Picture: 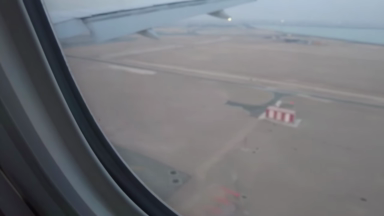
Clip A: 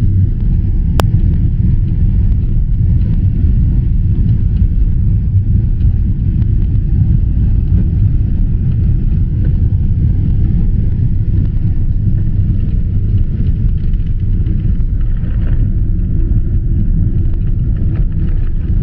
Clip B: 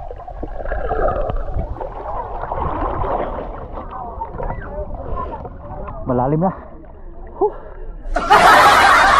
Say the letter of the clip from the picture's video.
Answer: A